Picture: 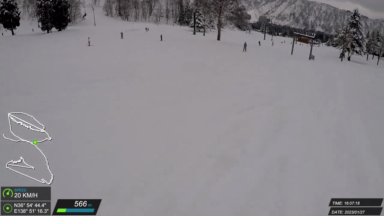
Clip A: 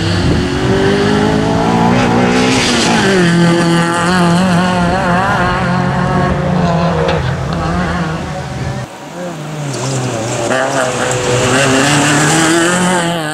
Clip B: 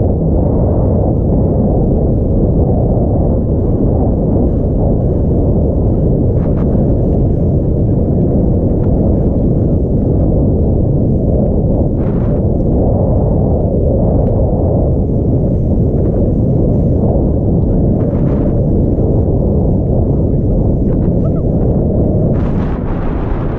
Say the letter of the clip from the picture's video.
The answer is B